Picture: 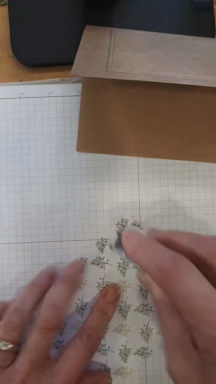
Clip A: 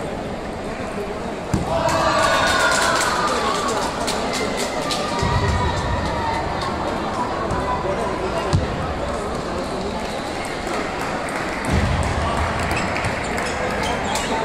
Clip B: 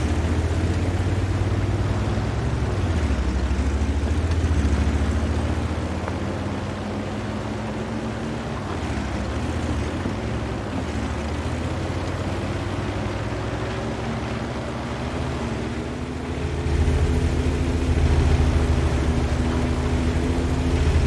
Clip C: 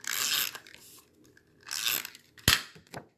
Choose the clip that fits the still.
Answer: C